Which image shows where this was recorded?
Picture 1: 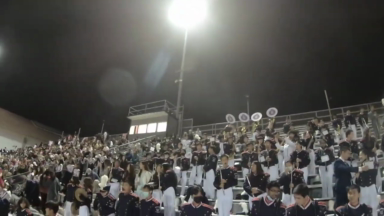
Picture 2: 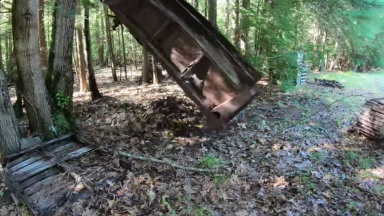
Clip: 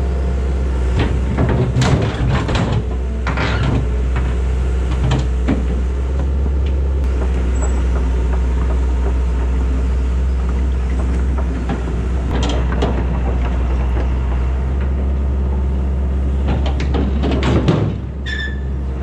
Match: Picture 2